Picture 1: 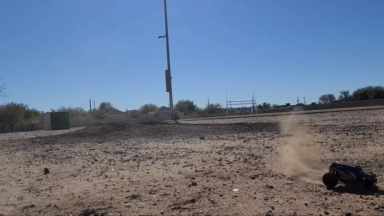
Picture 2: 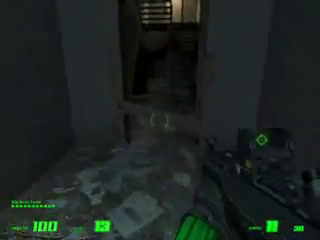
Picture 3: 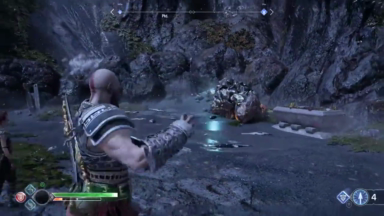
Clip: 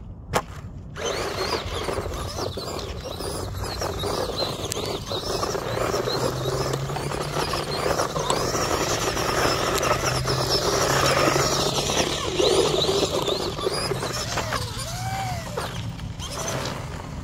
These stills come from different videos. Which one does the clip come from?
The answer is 1